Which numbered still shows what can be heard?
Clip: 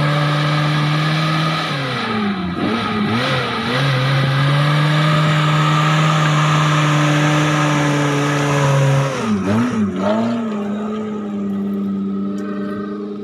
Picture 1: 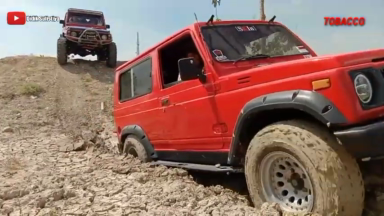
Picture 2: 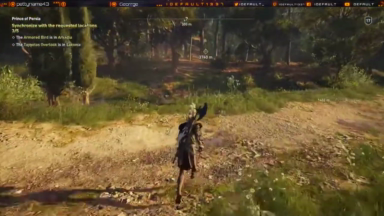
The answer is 1